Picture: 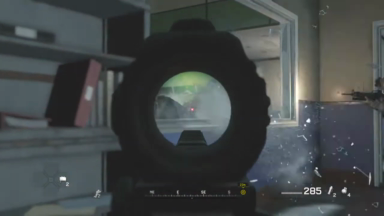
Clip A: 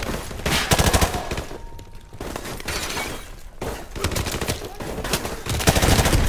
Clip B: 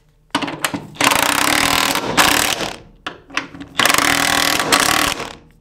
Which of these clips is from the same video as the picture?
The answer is A